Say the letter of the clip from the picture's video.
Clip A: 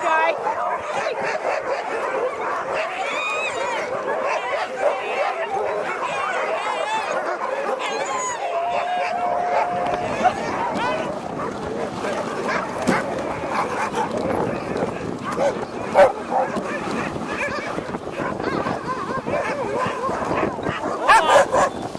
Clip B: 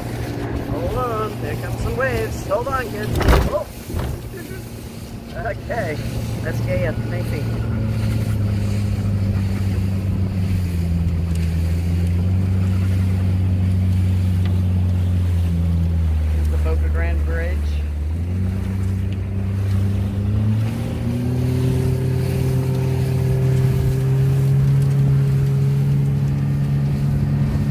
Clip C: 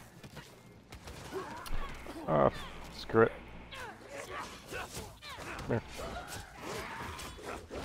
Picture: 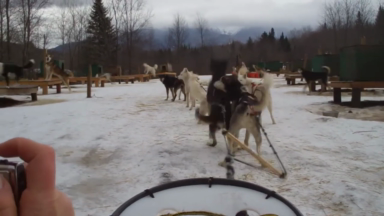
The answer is A